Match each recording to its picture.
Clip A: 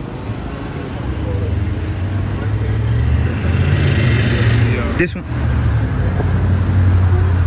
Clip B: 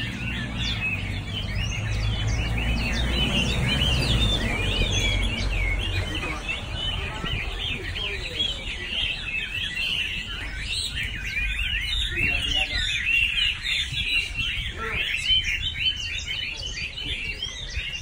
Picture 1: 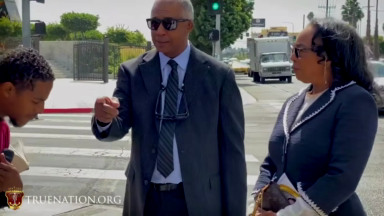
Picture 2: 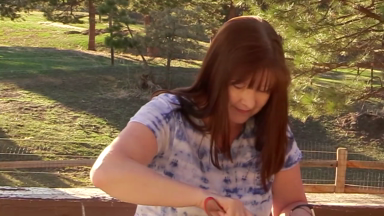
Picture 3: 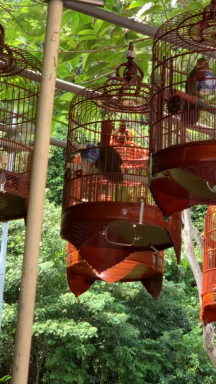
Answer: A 1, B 3